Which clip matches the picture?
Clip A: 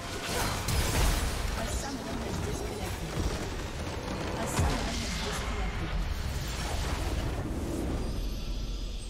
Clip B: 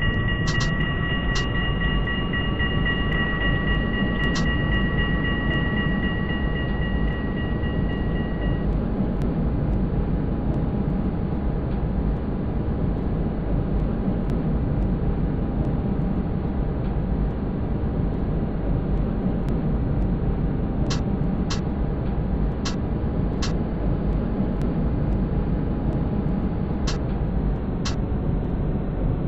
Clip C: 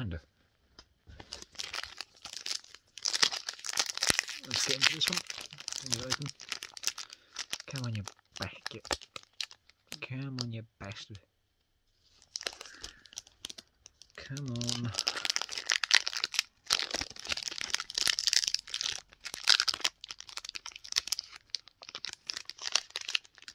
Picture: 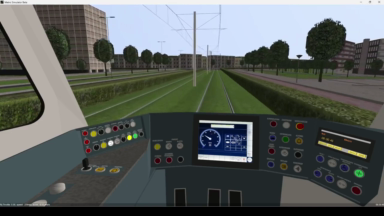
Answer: B